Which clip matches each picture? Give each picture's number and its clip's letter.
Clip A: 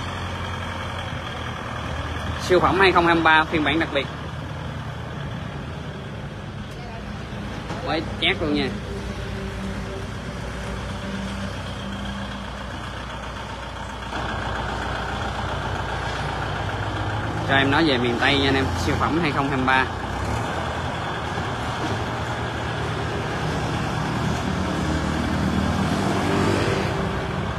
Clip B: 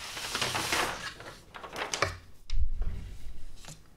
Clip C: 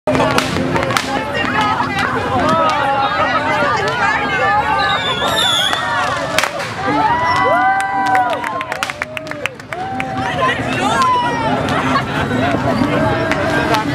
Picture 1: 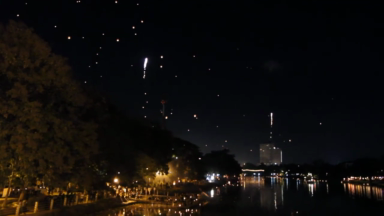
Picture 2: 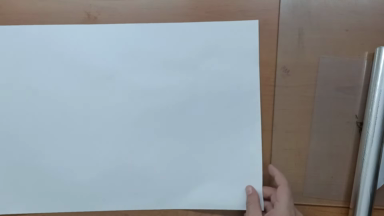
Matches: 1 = C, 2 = B